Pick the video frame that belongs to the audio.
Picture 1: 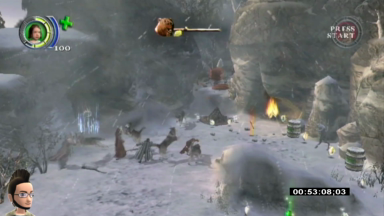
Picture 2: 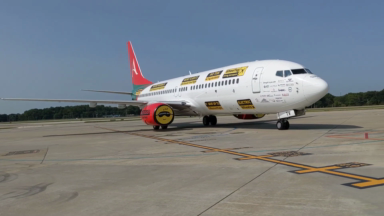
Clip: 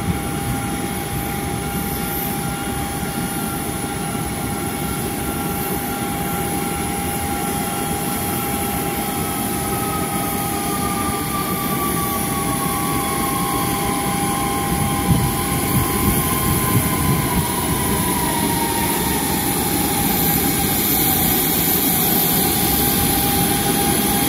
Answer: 2